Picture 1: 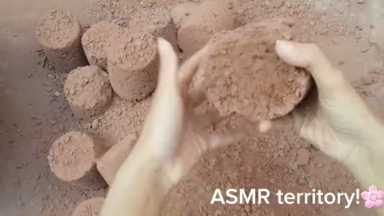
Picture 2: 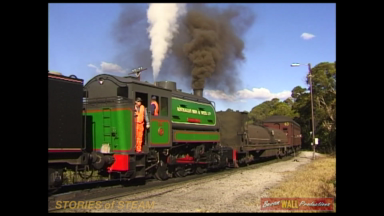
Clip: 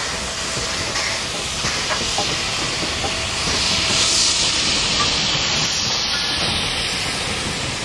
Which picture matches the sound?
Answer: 2